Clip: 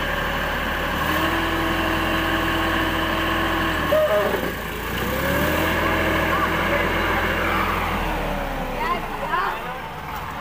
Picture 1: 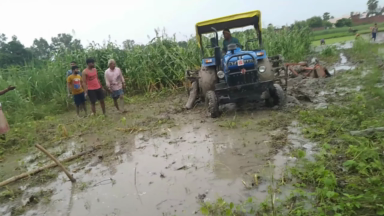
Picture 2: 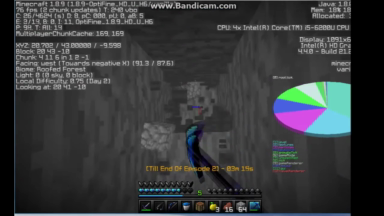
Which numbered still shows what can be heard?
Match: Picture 1